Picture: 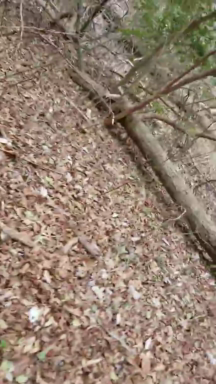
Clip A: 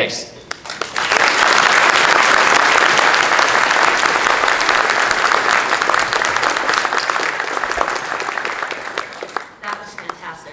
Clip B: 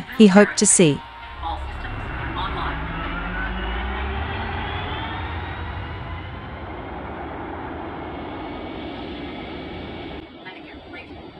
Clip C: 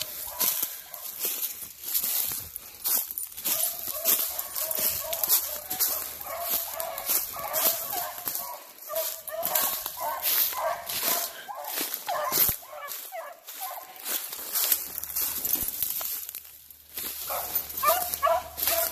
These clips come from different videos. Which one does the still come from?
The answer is C